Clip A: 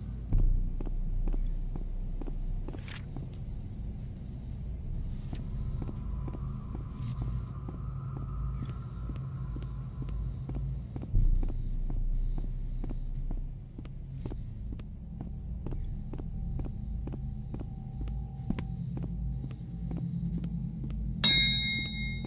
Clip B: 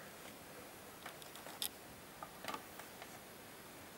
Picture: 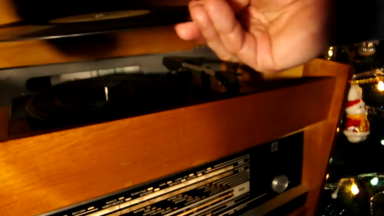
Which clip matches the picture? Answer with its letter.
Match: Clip B